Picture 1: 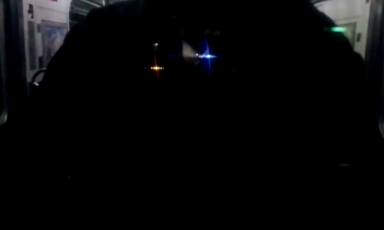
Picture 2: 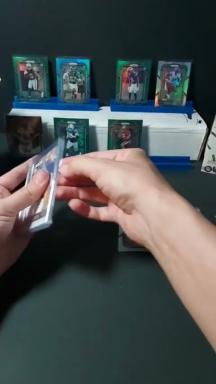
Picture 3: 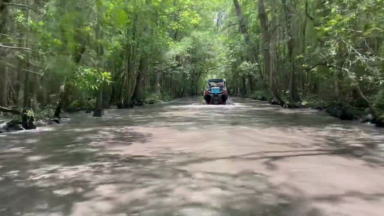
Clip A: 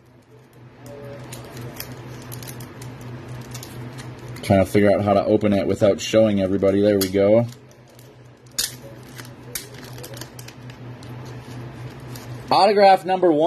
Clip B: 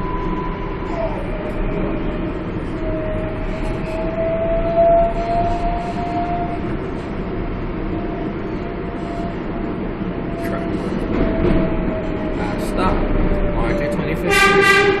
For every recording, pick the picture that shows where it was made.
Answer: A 2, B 1